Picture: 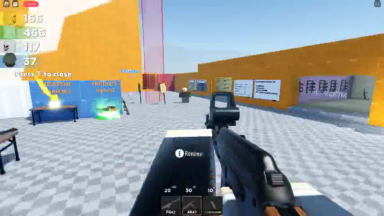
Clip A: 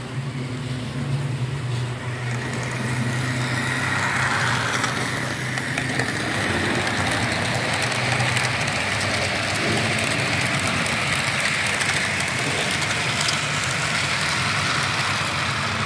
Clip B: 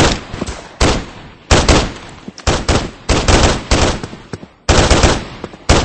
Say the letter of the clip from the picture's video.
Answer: B